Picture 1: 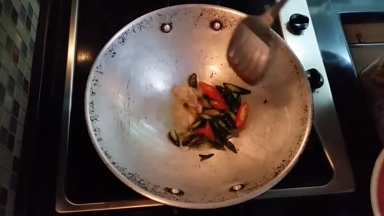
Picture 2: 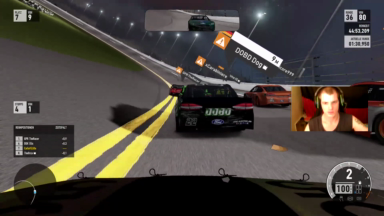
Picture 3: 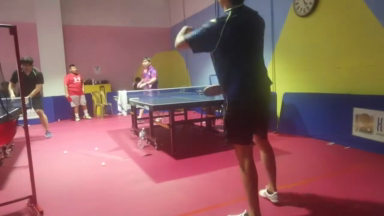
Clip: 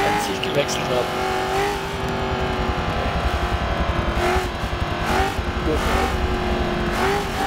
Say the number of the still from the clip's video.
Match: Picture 2